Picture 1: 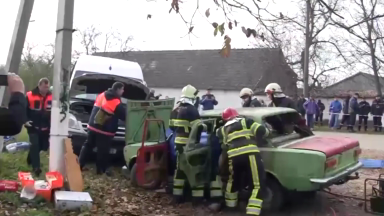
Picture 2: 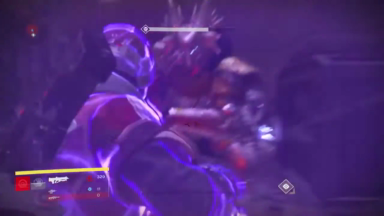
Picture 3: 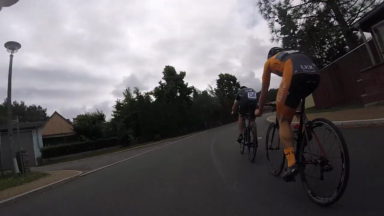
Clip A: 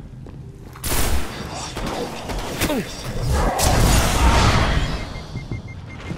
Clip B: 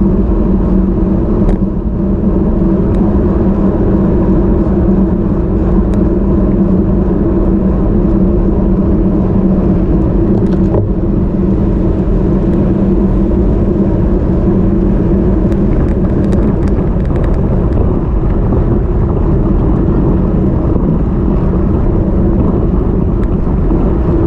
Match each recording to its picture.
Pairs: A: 2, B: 3